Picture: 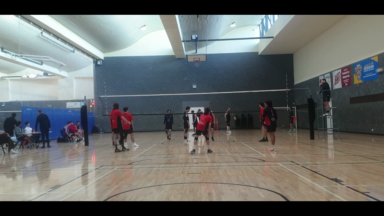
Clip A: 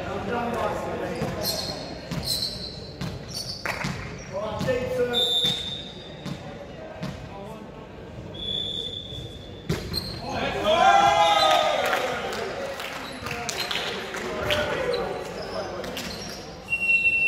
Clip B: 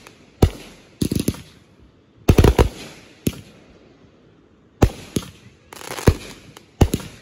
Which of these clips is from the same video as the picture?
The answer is A